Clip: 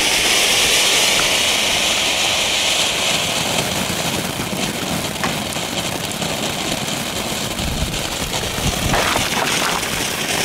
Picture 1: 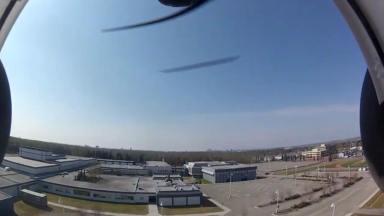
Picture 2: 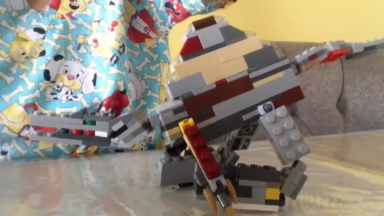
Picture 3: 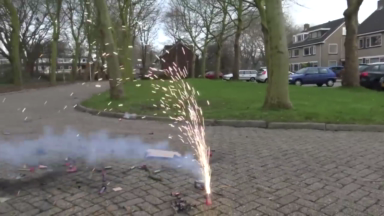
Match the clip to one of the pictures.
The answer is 3